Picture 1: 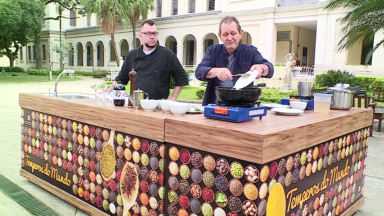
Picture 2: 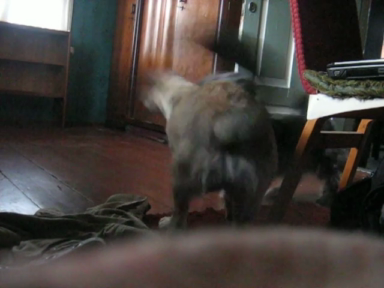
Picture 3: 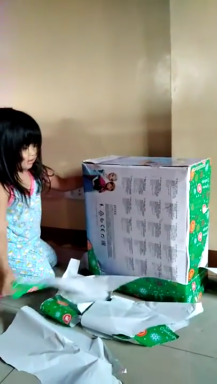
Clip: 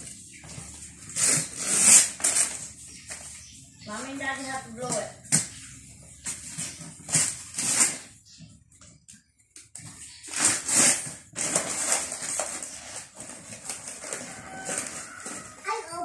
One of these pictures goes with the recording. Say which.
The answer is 3